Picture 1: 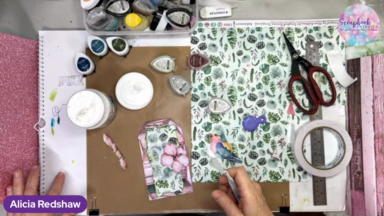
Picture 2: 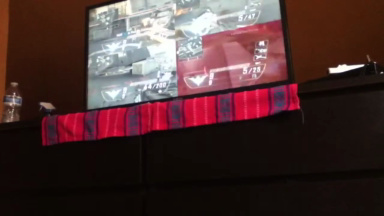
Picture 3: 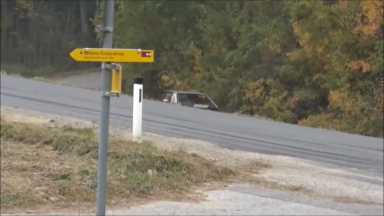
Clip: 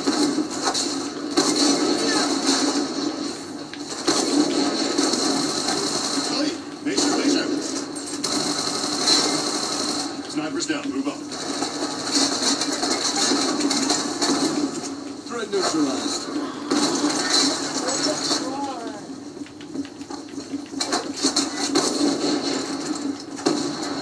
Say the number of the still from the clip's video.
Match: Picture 2